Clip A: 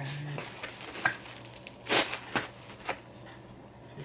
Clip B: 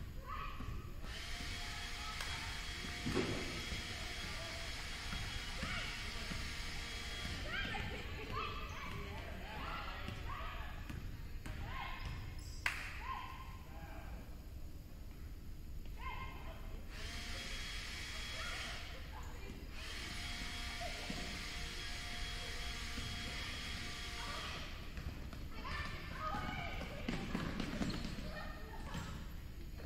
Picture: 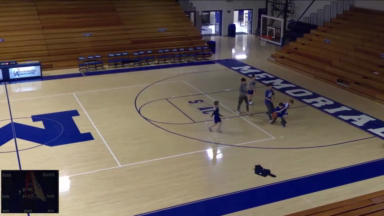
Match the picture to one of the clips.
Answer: B